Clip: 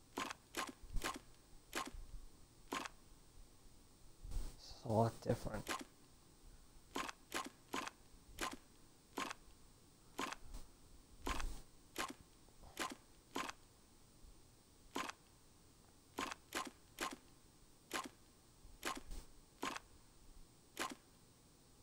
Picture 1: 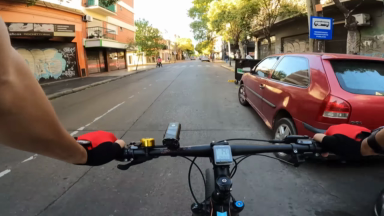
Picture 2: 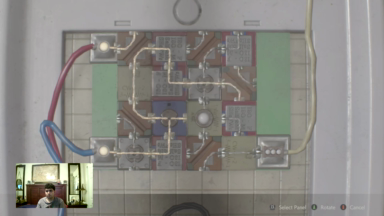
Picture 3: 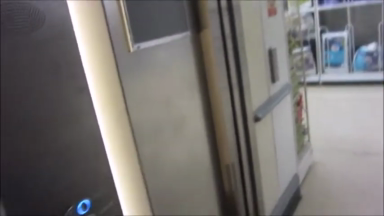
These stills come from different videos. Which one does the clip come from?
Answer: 2